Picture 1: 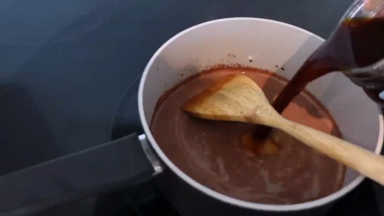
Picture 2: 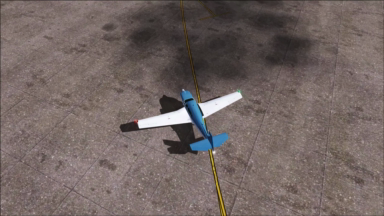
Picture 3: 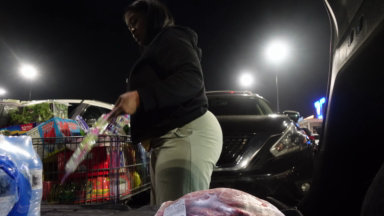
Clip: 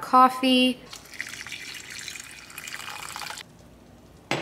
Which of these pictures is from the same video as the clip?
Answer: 1